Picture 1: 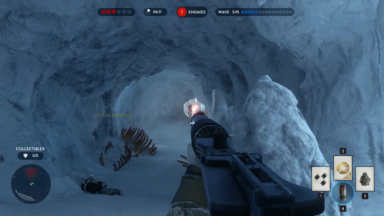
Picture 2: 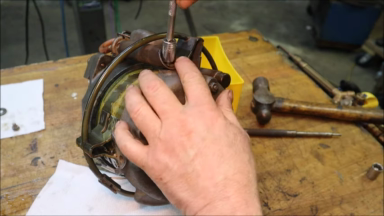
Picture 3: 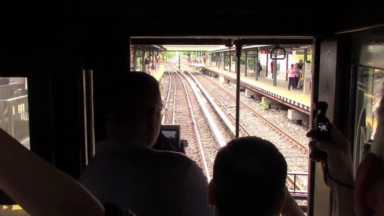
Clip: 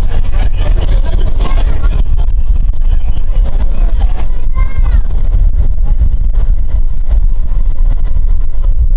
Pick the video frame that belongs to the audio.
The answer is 3